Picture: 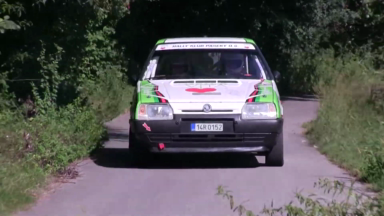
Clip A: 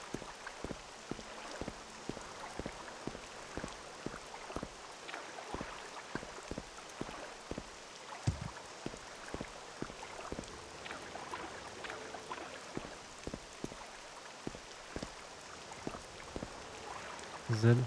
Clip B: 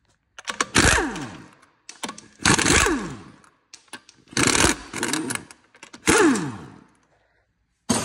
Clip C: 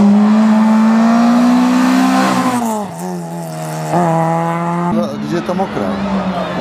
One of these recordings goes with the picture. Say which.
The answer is C